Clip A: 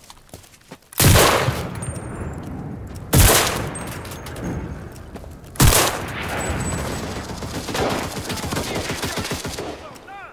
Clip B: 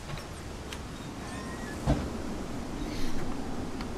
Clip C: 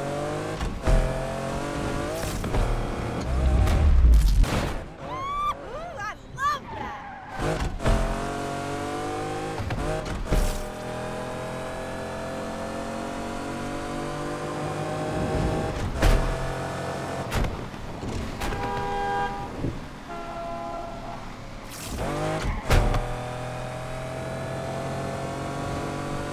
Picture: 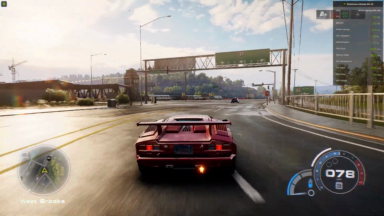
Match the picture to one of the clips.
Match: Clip C